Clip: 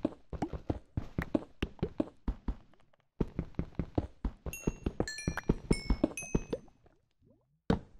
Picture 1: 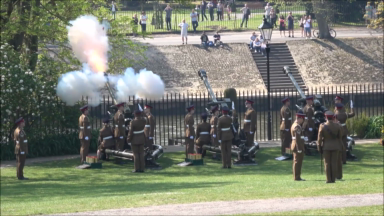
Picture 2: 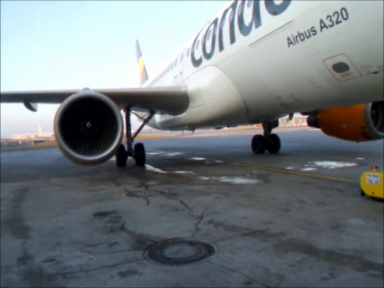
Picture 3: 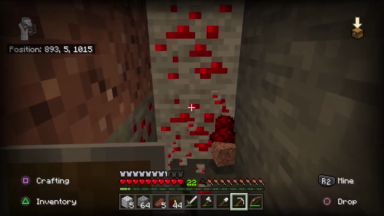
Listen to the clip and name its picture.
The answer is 3